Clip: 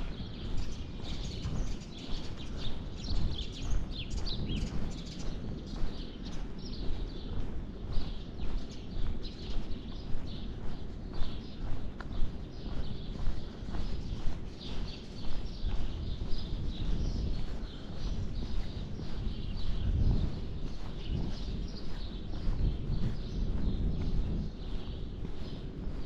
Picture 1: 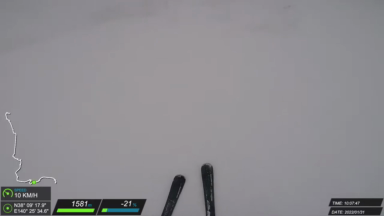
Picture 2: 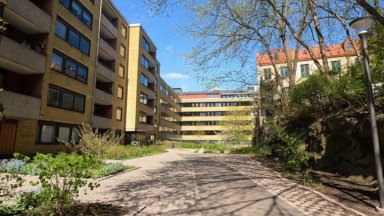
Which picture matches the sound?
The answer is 2